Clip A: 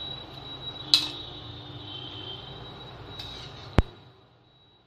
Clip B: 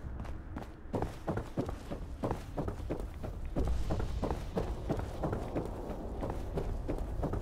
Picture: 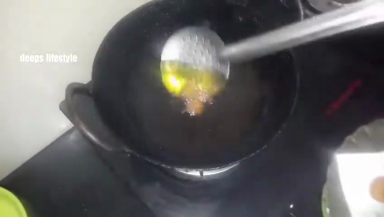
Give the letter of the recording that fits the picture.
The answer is A